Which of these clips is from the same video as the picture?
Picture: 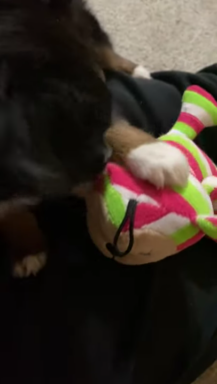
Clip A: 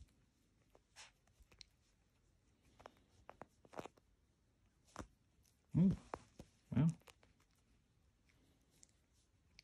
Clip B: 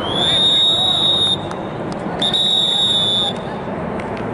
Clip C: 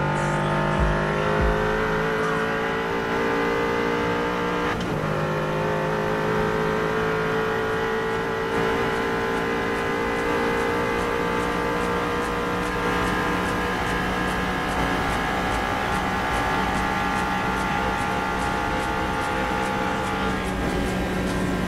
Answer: A